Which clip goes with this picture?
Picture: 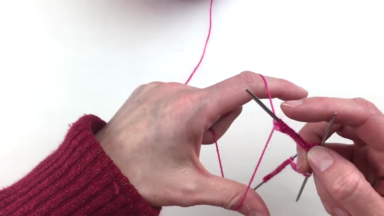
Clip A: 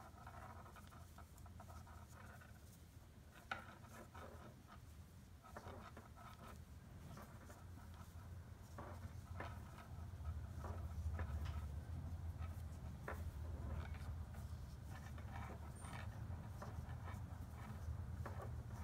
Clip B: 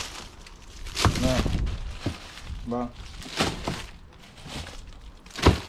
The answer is A